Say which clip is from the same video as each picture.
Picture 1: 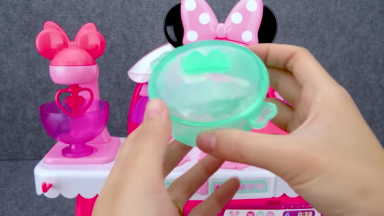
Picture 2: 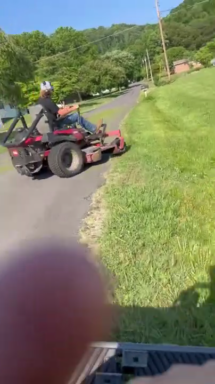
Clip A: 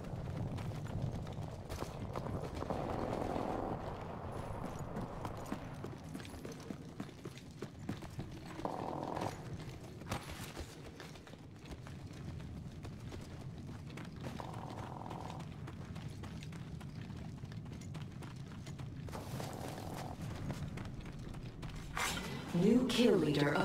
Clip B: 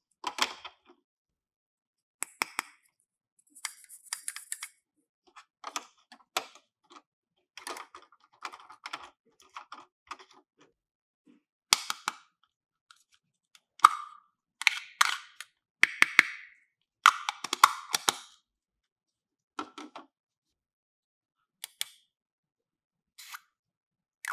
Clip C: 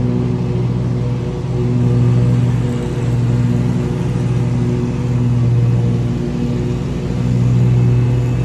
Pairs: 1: B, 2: C